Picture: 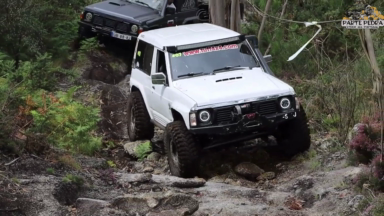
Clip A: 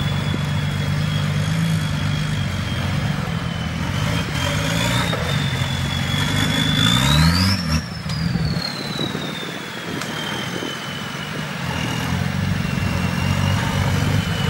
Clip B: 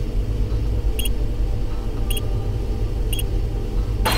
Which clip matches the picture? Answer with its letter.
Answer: A